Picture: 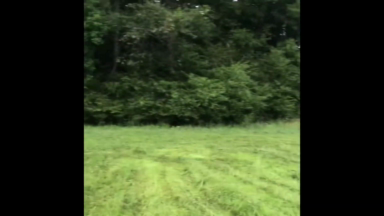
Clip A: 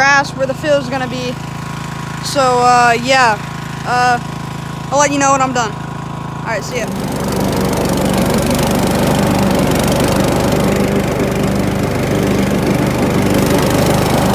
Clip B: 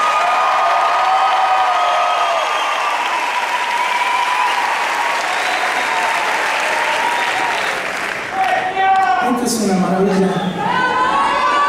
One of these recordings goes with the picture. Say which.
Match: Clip A